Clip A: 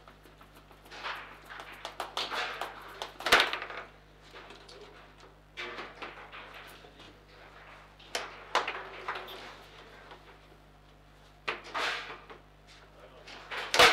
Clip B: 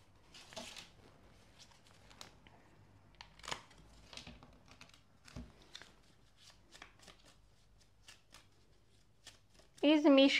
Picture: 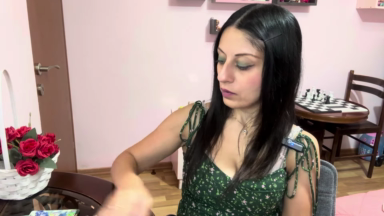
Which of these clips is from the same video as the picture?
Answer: B